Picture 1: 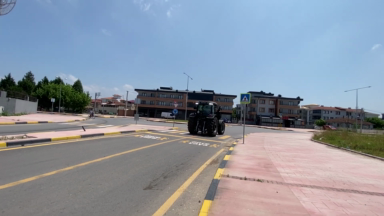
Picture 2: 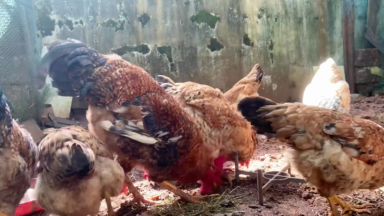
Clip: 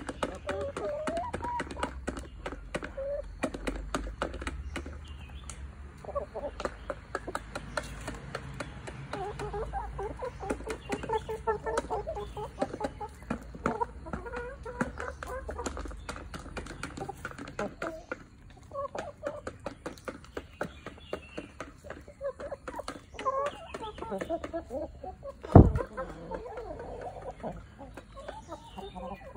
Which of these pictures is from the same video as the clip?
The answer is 2